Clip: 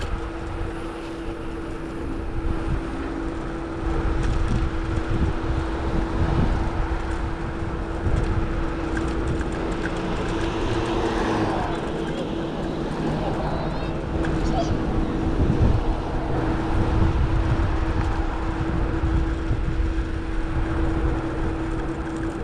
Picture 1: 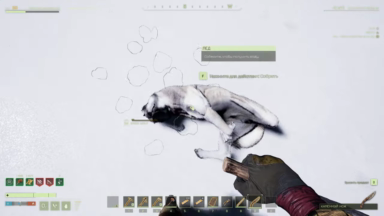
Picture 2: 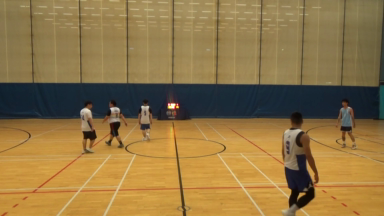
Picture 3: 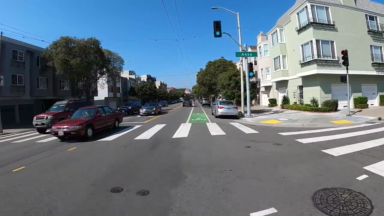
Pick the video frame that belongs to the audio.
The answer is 3